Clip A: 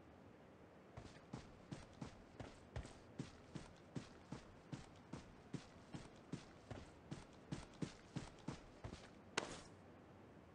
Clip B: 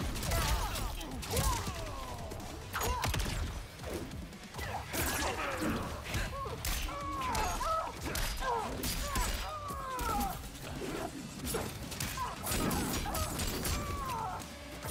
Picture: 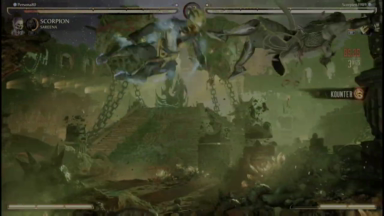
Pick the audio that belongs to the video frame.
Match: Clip B